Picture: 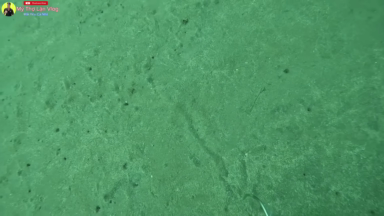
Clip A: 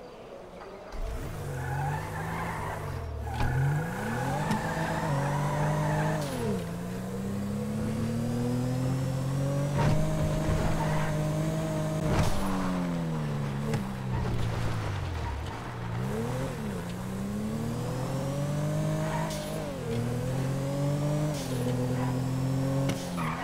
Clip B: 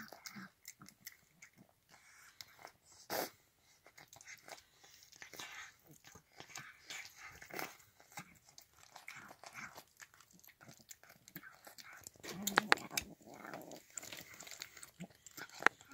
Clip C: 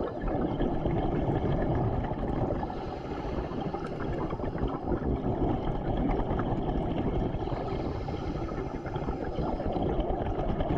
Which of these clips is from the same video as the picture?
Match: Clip C